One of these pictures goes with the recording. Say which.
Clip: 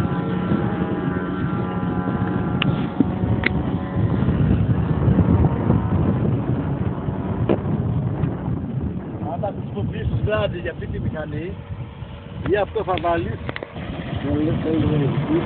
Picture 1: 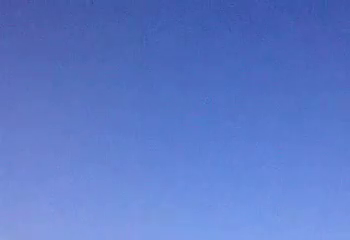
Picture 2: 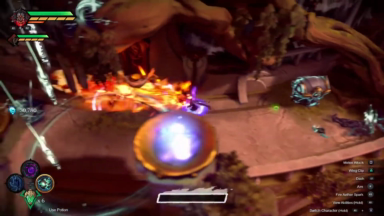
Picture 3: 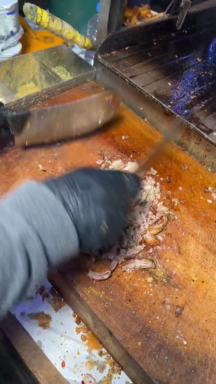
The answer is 1